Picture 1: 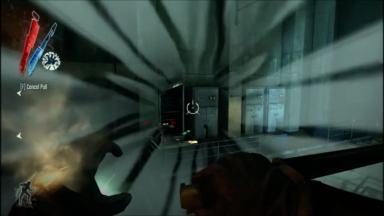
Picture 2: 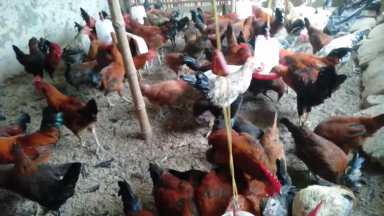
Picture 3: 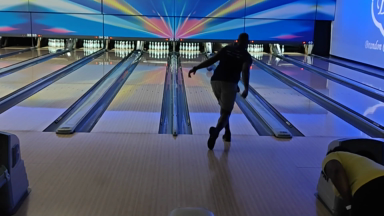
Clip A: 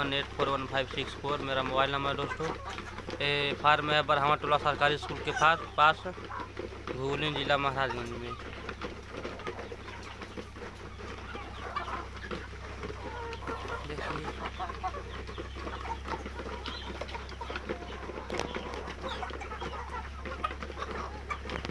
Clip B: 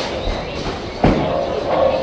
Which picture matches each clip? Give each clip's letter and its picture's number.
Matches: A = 2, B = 3